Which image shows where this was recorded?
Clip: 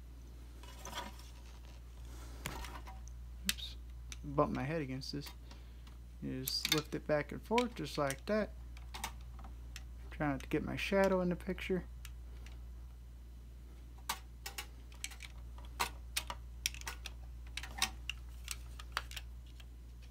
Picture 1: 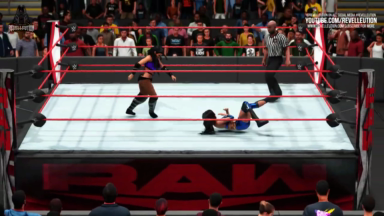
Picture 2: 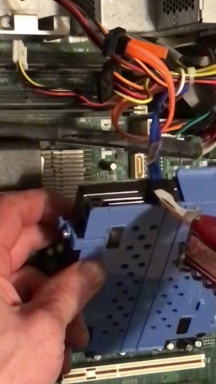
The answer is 2